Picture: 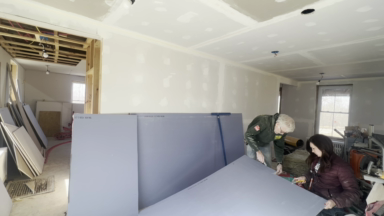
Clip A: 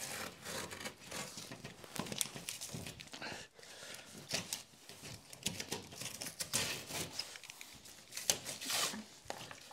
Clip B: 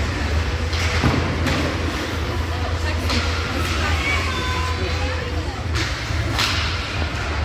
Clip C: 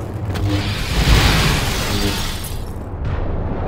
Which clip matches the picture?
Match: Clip A